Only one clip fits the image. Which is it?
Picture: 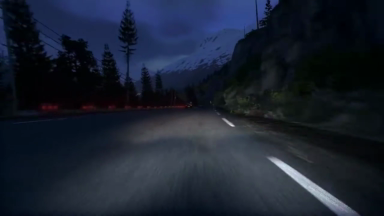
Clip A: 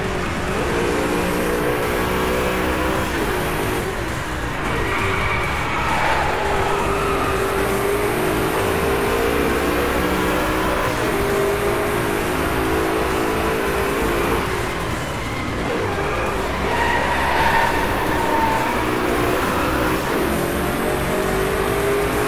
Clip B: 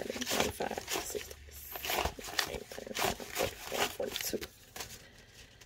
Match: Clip A